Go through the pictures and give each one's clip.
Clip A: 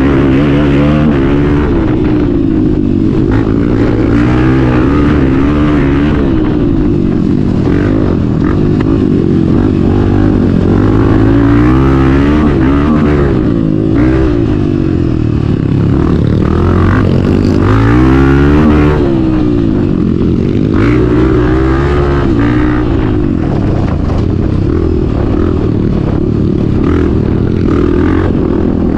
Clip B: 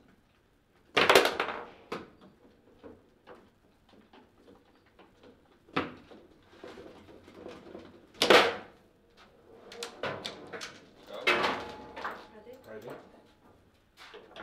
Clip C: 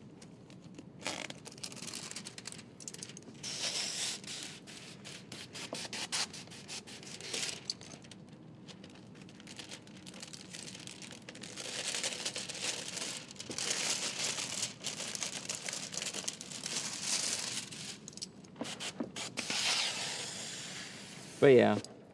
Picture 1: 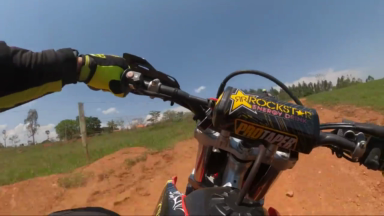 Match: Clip A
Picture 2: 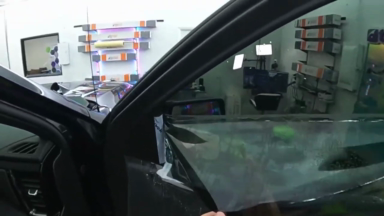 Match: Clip C